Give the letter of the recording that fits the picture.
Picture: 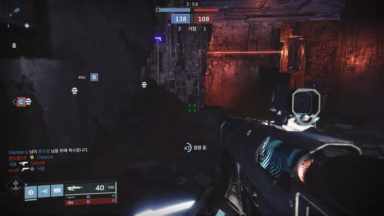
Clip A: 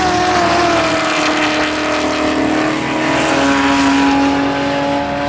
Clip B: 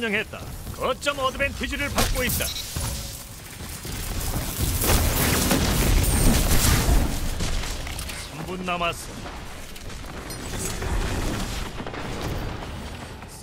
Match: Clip B